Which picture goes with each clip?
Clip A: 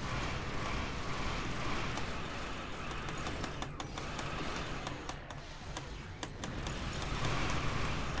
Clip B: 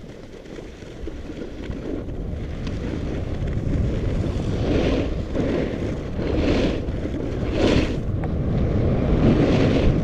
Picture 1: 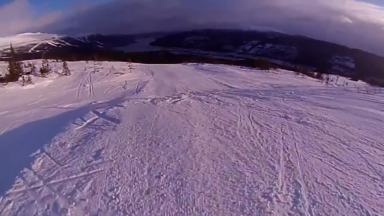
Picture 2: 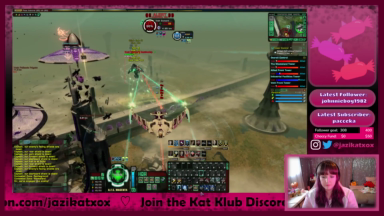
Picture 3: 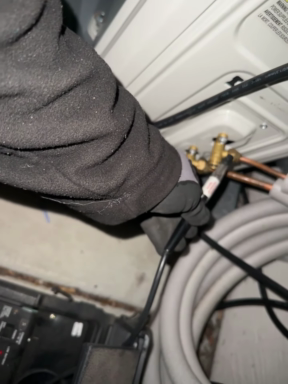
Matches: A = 2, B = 1